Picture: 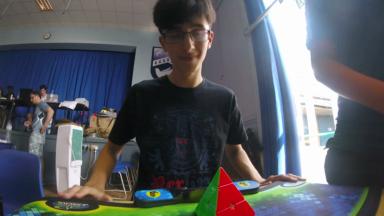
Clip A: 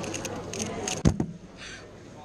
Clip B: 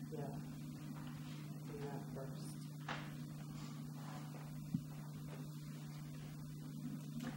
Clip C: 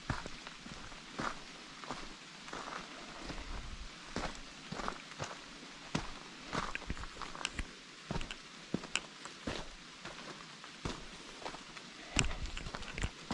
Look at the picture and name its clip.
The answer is A